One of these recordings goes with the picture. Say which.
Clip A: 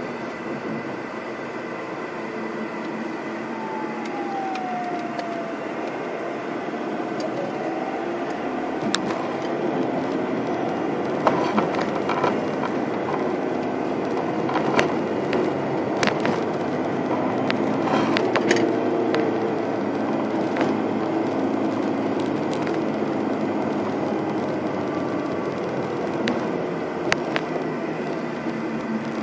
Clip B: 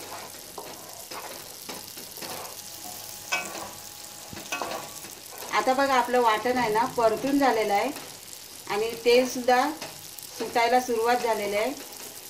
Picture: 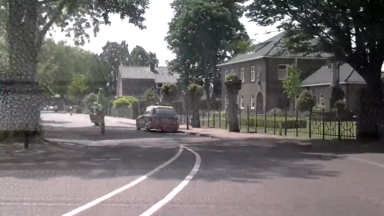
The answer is A